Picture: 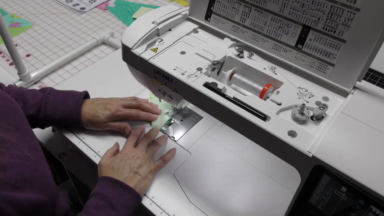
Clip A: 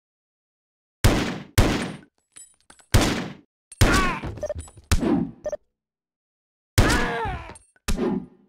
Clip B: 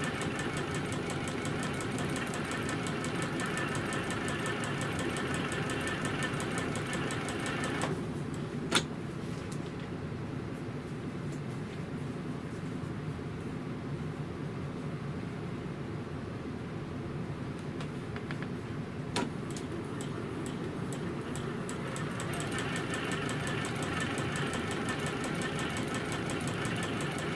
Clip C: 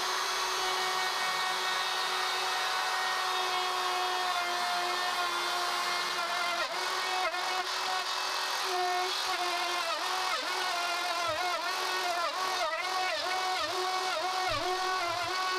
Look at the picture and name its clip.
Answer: B